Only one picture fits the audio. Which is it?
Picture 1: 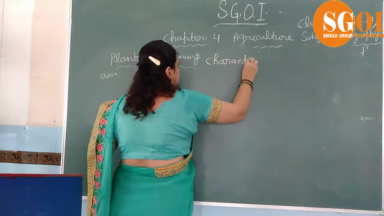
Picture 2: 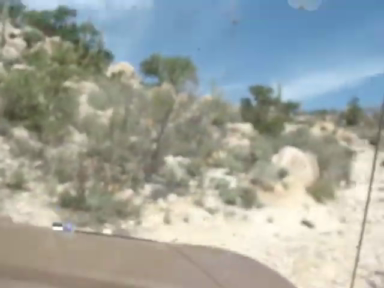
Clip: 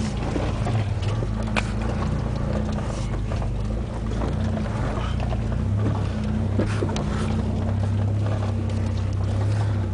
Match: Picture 2